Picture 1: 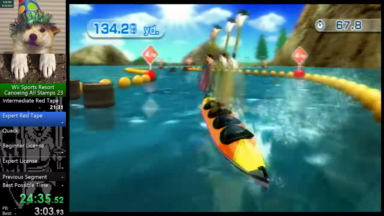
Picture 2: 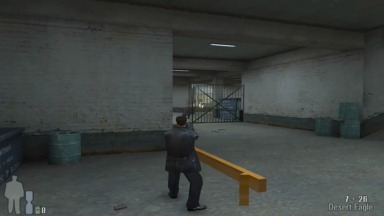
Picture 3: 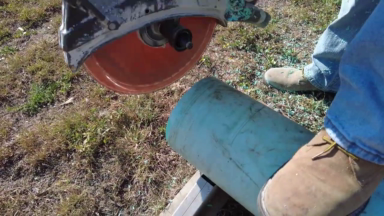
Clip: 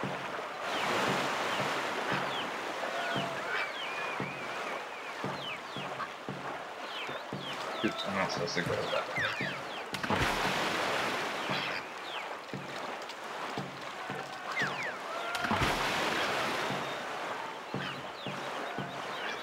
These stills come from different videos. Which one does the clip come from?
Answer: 1